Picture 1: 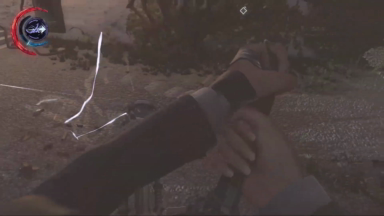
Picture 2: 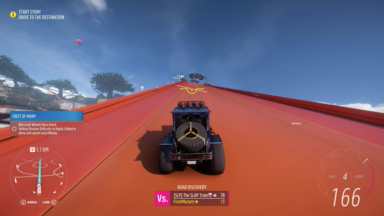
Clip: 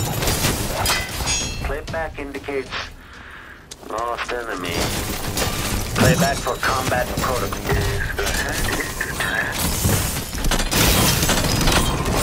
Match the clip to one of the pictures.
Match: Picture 1